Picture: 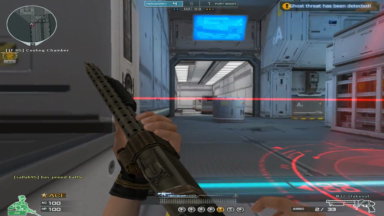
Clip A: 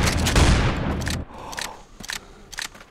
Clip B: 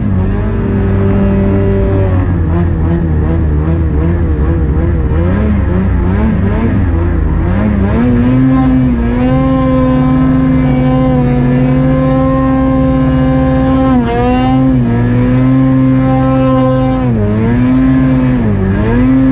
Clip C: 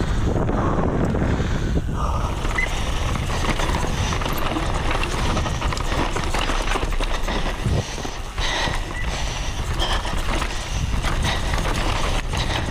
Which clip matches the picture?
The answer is A